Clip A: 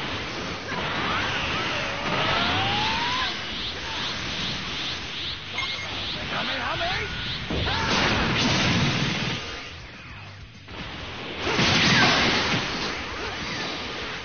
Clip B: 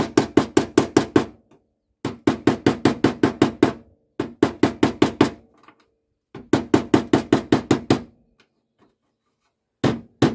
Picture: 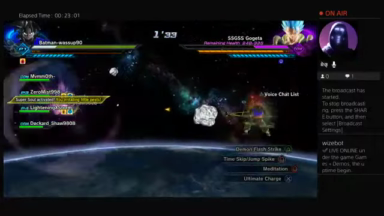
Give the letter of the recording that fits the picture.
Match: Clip A